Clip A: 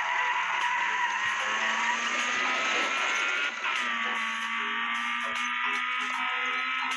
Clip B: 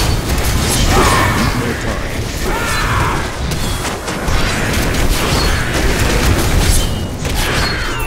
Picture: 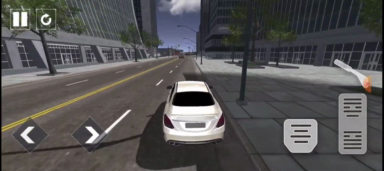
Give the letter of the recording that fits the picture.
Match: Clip A